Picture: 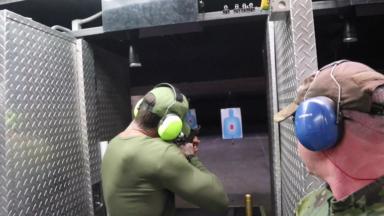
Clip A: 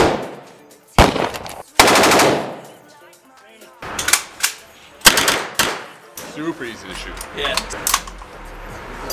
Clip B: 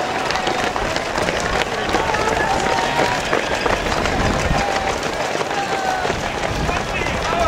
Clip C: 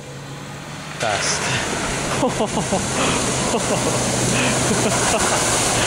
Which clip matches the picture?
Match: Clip A